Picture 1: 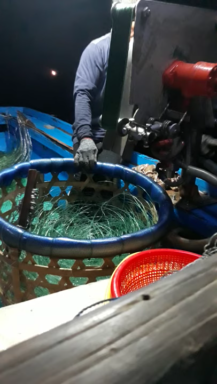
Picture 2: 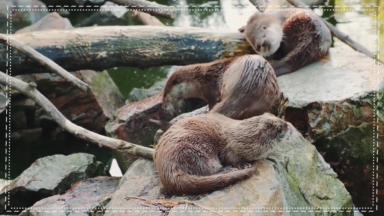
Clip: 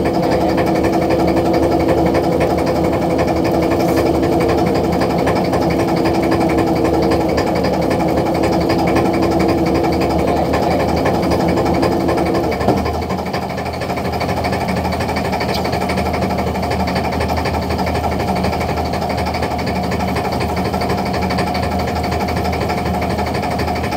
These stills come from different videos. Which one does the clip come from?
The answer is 1